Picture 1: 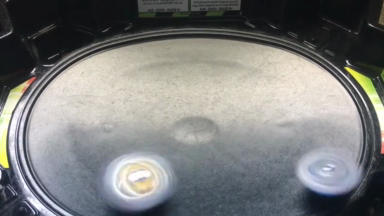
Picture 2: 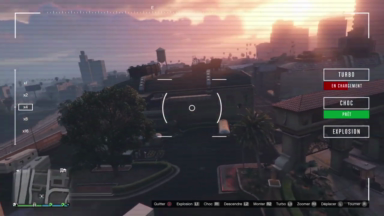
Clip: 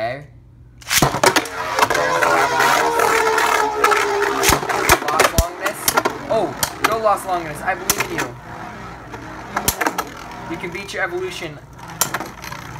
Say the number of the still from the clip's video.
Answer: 1